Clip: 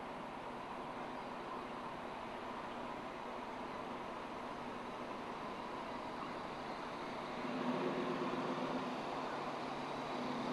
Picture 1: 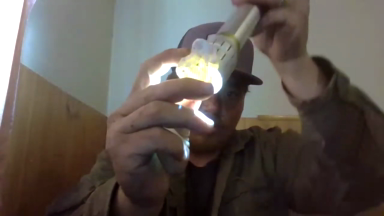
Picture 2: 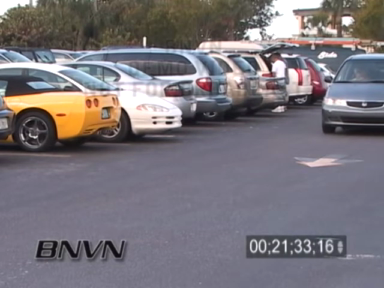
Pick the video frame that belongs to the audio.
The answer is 2